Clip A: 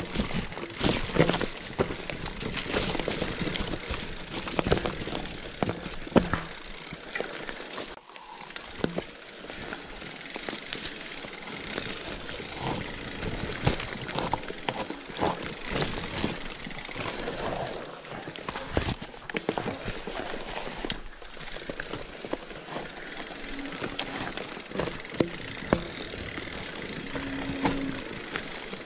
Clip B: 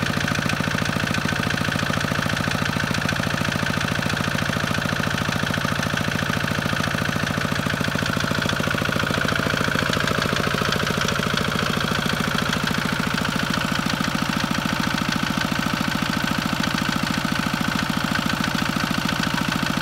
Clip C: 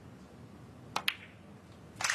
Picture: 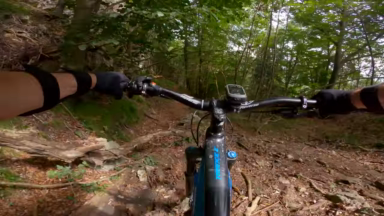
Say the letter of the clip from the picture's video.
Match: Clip A